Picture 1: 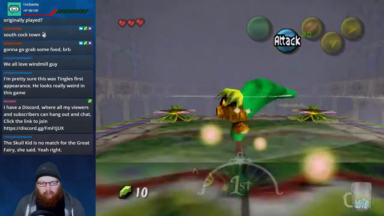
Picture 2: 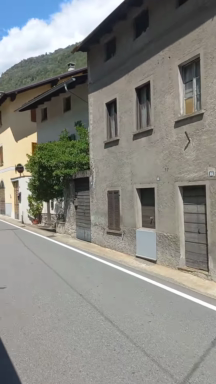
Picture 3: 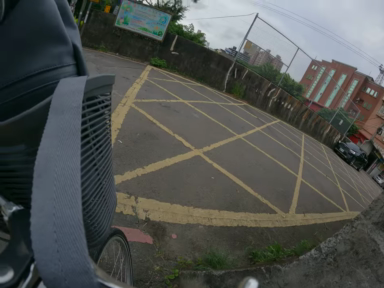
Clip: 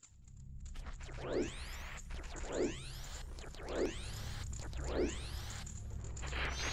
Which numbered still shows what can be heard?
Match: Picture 1